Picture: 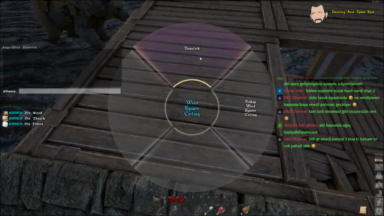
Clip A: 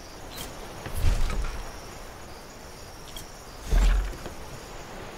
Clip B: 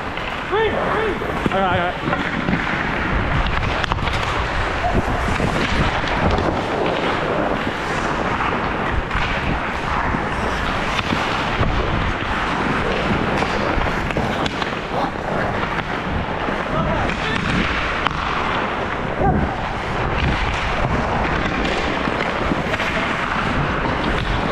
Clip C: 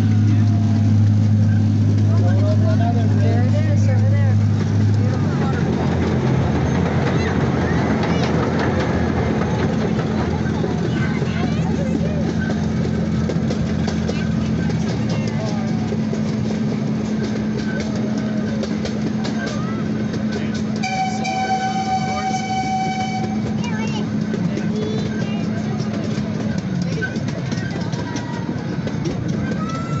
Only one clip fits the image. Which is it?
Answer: A